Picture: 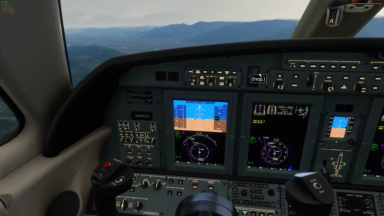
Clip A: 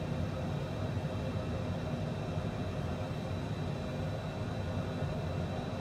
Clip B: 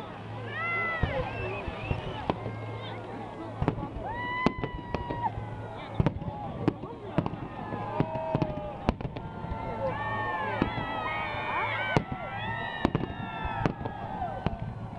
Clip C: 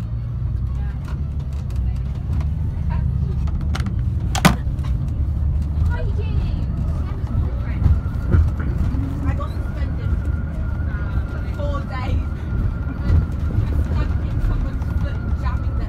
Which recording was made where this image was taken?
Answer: A